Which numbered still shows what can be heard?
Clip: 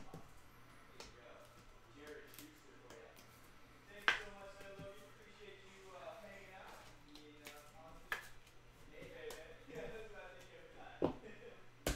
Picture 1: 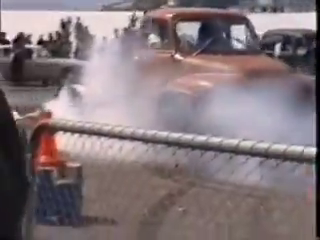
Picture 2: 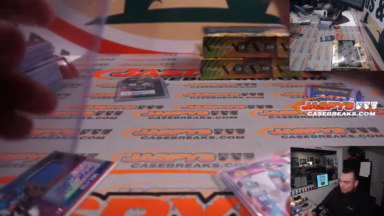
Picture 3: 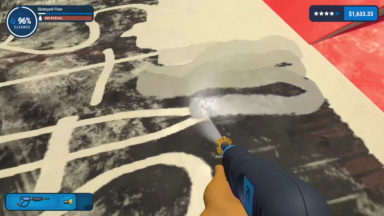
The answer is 2